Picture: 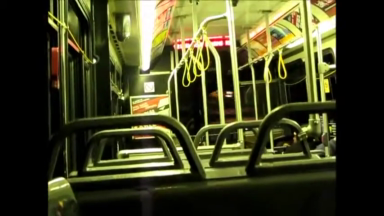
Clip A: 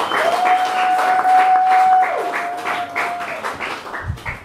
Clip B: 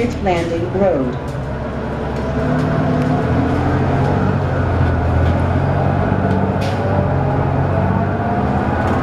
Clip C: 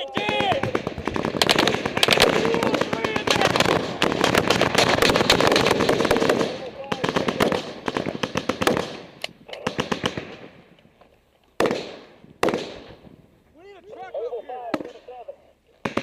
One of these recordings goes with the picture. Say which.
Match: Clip B